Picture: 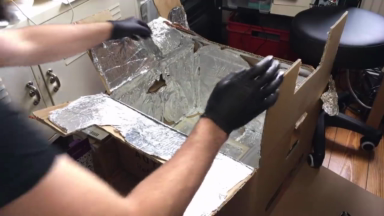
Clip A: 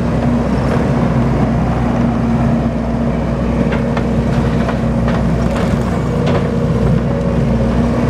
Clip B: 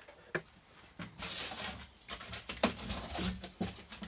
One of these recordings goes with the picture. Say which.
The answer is B